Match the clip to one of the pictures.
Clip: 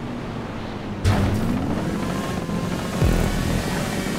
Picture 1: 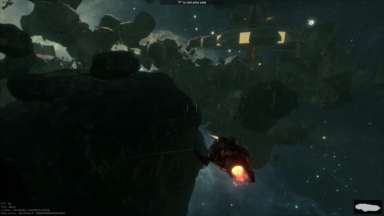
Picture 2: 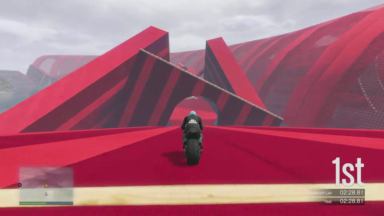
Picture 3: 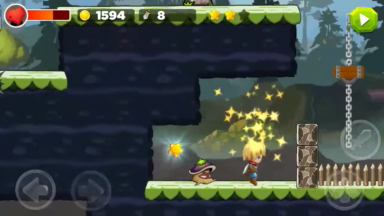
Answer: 2